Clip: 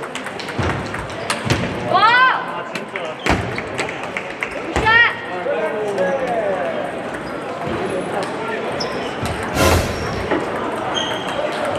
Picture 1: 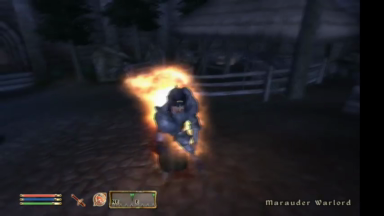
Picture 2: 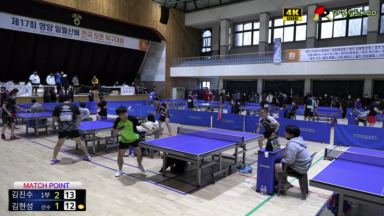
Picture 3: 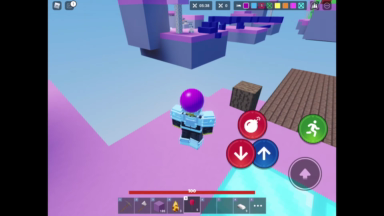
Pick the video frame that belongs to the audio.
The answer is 2